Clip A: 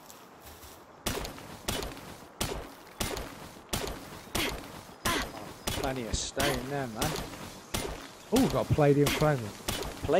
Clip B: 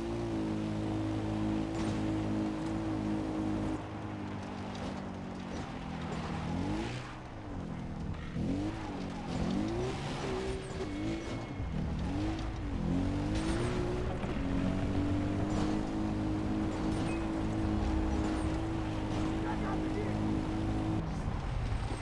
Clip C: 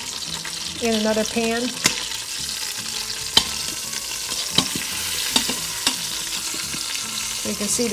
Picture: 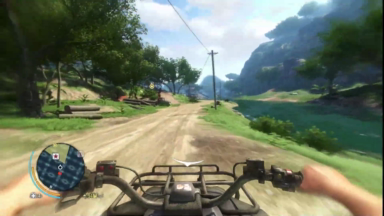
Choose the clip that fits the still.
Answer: B